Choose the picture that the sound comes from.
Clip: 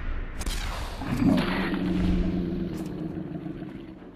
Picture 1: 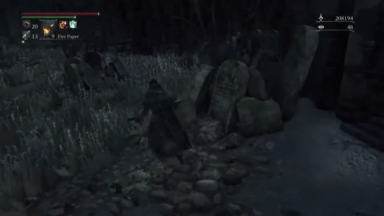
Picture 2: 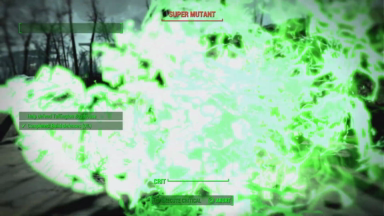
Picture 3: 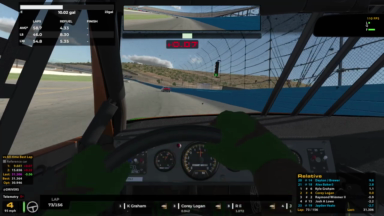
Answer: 2